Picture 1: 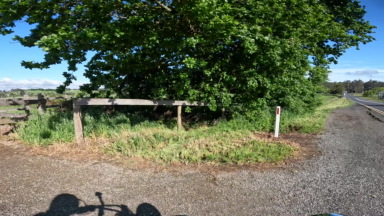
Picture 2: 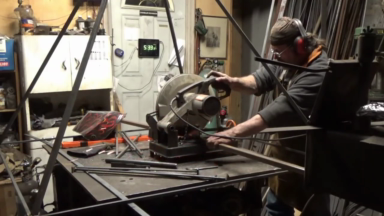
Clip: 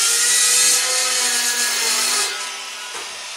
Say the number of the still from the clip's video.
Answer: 2